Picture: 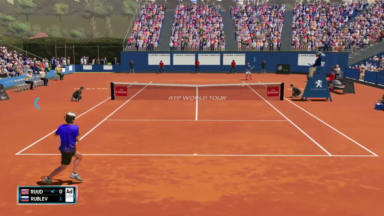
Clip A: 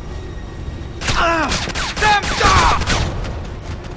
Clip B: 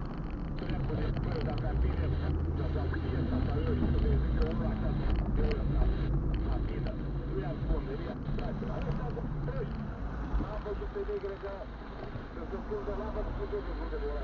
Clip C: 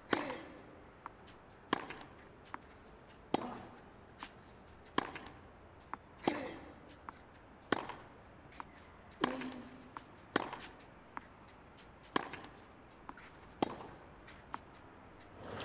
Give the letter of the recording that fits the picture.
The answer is C